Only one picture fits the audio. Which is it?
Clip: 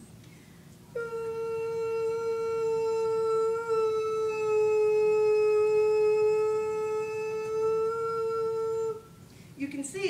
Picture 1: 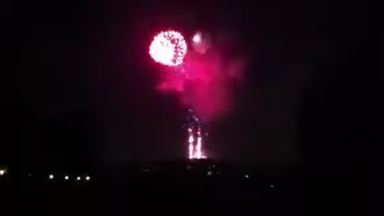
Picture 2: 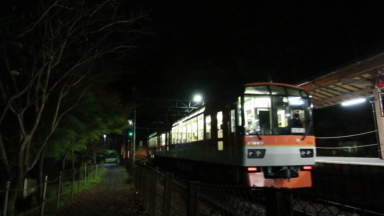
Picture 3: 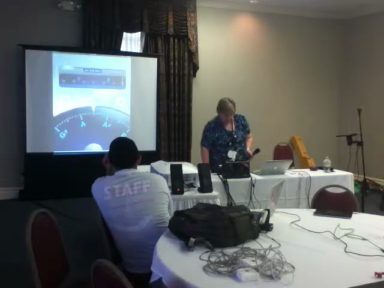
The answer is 3